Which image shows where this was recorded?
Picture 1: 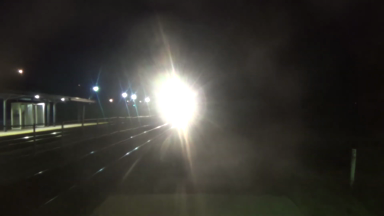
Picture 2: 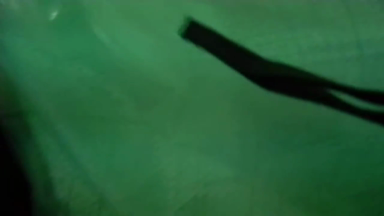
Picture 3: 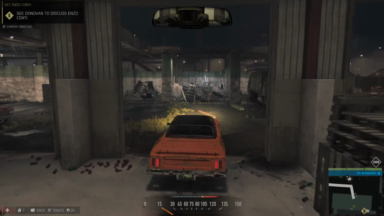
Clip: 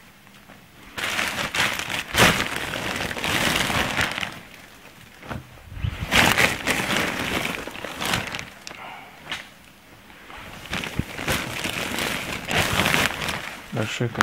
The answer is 2